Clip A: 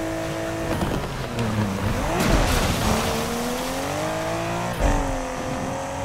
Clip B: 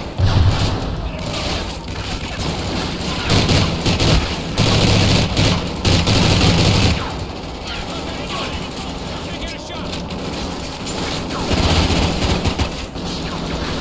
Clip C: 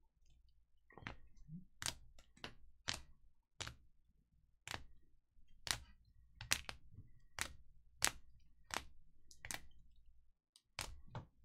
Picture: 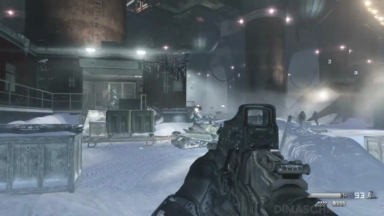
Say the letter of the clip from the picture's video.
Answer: B